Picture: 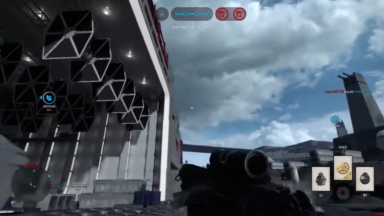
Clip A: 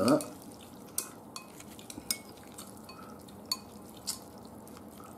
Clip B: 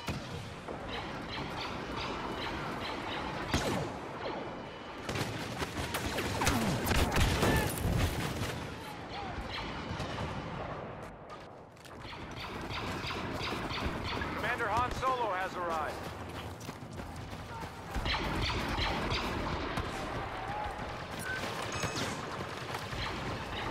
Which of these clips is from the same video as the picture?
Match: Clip B